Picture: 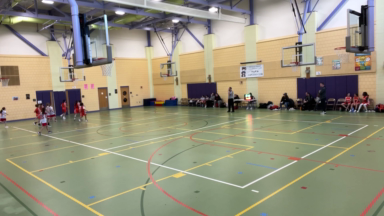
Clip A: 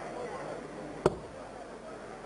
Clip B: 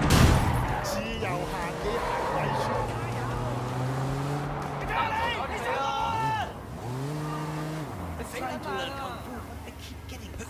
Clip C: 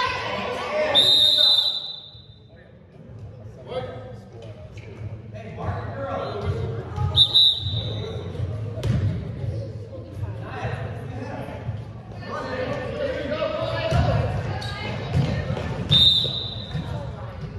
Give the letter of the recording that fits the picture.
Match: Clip C